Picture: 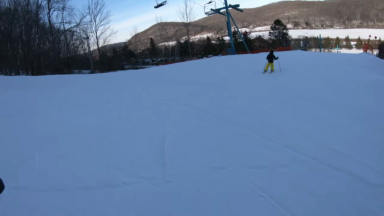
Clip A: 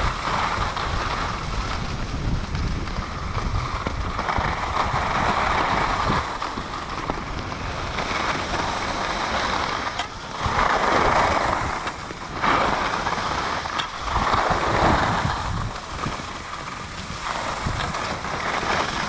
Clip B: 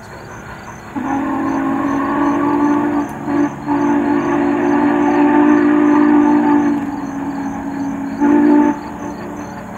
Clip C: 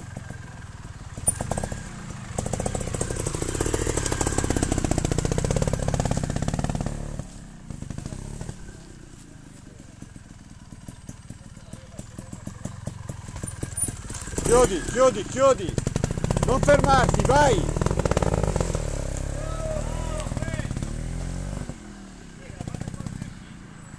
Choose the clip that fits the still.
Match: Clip A